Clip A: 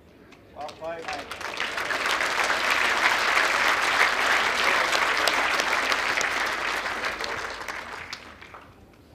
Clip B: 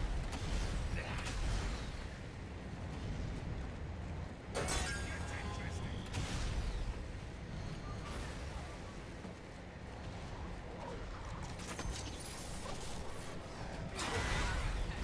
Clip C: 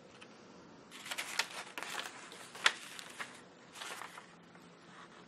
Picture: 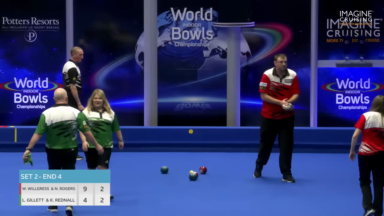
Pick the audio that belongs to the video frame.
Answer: A